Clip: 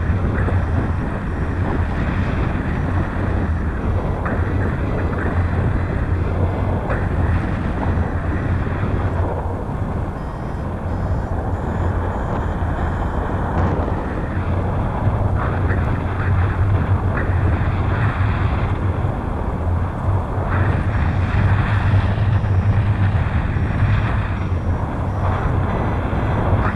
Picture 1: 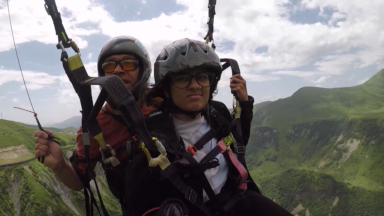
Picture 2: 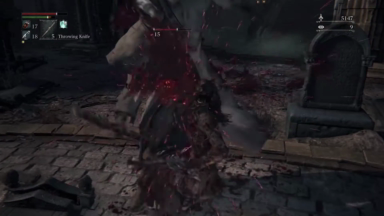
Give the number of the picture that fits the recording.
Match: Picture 1